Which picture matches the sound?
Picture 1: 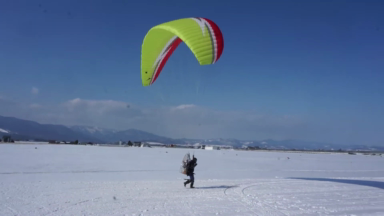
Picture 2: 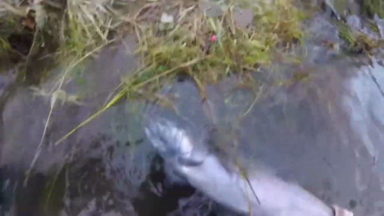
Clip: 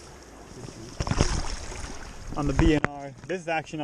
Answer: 2